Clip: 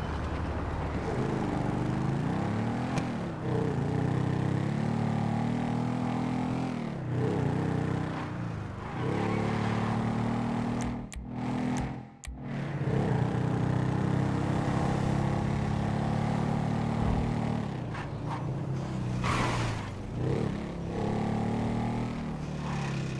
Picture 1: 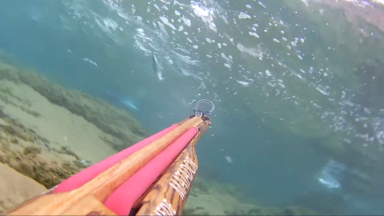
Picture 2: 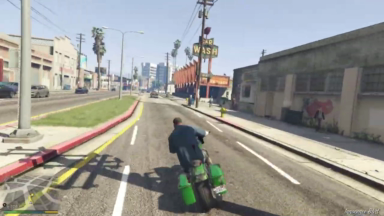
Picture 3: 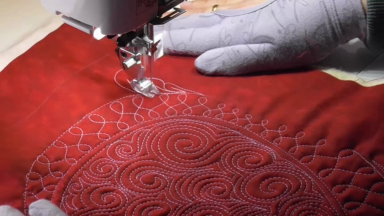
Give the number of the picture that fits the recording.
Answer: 2